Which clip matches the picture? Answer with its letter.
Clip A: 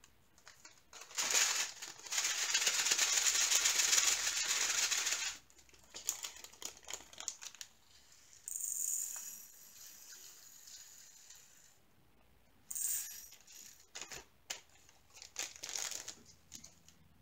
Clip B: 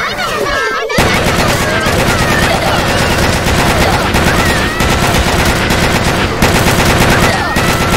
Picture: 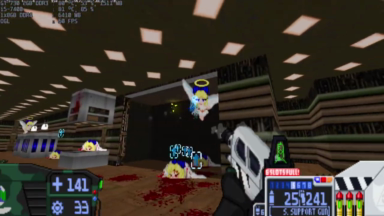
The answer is B